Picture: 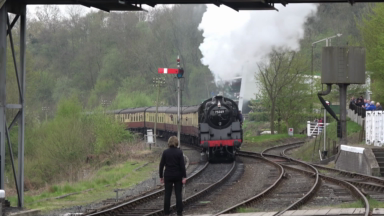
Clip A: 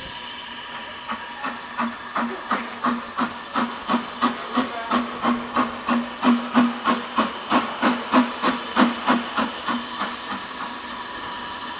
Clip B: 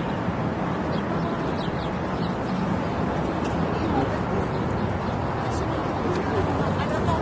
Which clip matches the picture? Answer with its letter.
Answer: A